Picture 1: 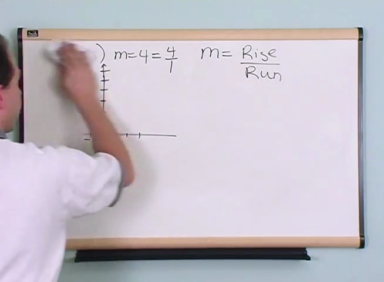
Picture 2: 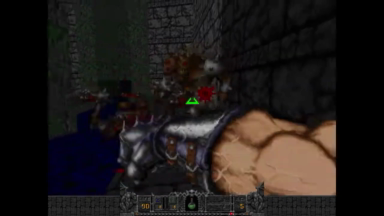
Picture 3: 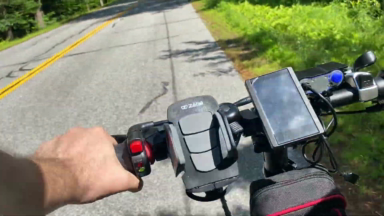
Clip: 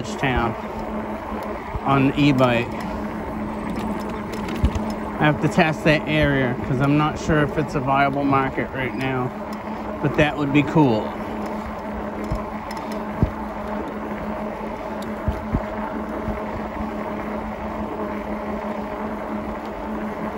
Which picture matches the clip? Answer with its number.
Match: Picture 3